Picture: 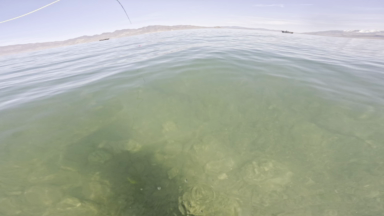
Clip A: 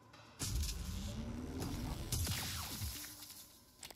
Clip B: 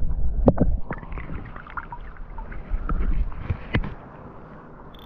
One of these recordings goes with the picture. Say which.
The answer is B